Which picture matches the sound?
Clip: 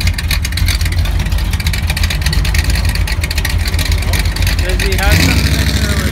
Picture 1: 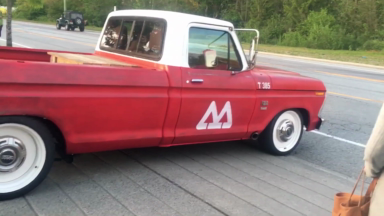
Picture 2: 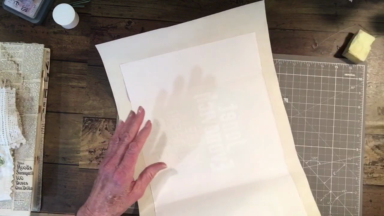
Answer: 1